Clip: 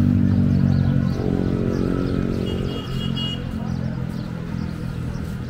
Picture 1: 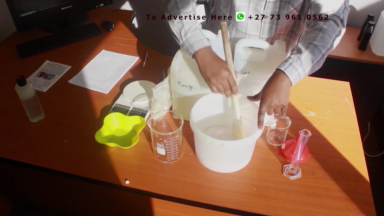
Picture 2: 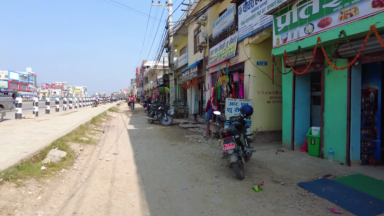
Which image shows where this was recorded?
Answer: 2